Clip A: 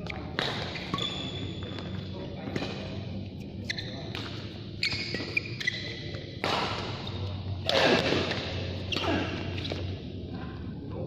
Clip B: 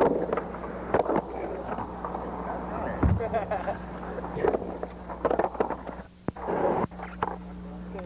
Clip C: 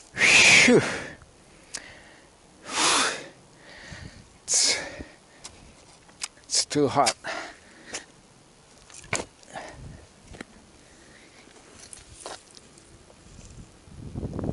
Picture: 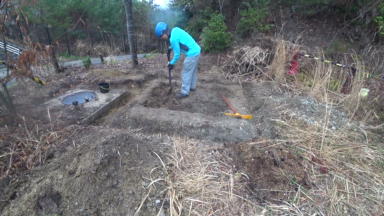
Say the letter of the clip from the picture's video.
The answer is C